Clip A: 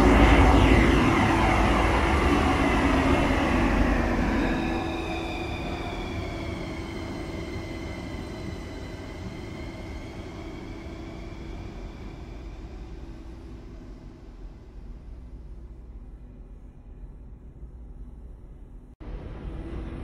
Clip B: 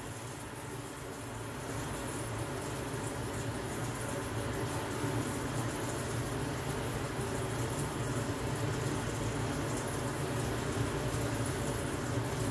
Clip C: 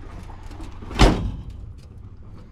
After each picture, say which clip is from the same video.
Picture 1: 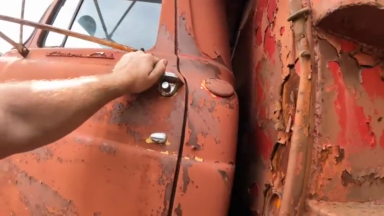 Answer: C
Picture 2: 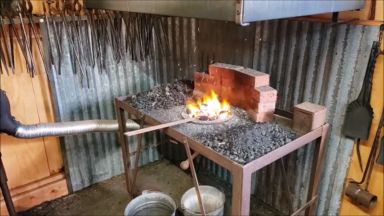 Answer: B